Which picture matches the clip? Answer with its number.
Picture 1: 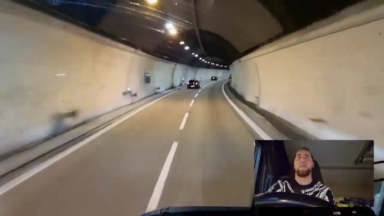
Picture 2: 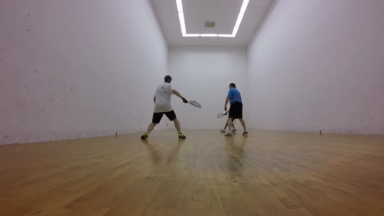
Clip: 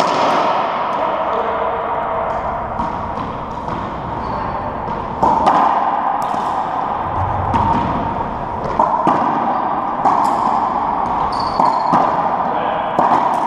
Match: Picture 2